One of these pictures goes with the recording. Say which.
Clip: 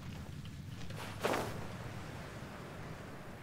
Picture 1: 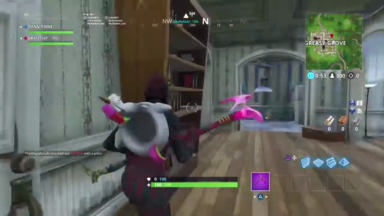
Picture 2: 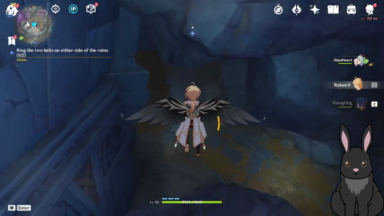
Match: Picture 2